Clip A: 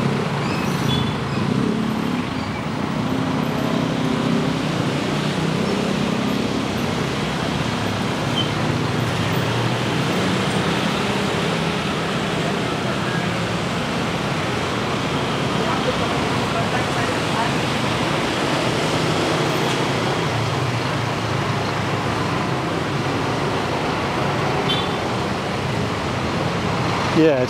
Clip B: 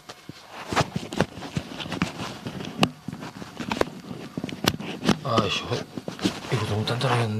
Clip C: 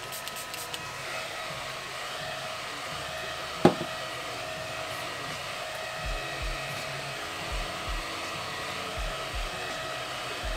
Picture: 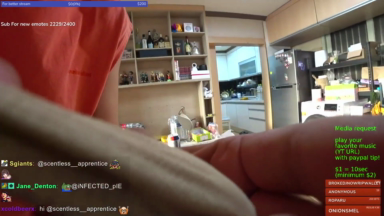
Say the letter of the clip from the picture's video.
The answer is B